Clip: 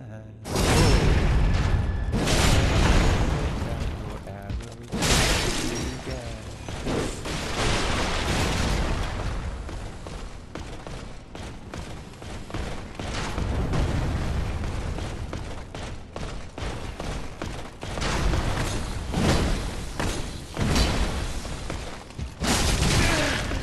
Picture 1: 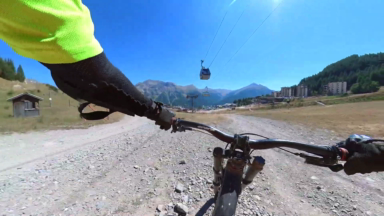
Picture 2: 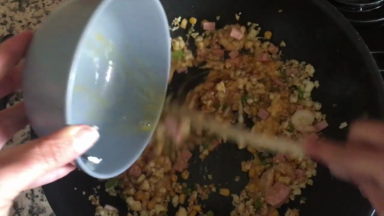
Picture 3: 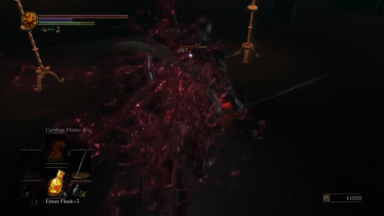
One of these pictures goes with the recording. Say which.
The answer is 3